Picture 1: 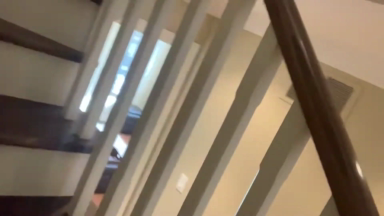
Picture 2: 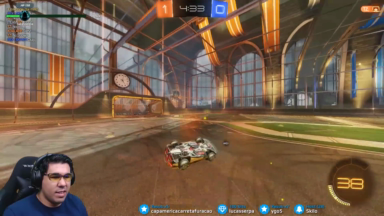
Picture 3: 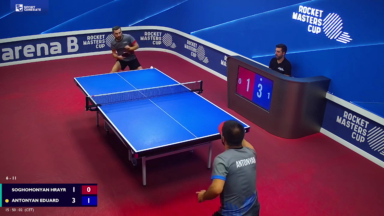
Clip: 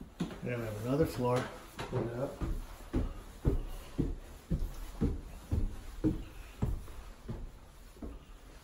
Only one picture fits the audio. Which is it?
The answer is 1